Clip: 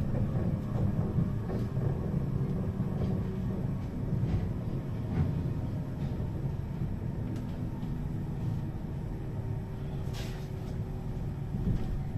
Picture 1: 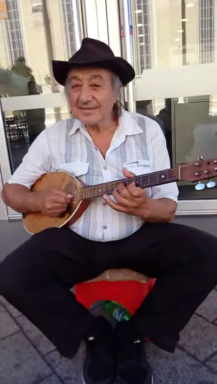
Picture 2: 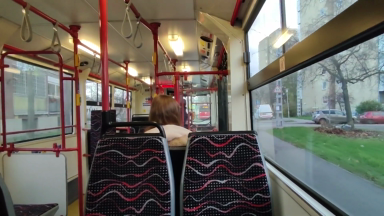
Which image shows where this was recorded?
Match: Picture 2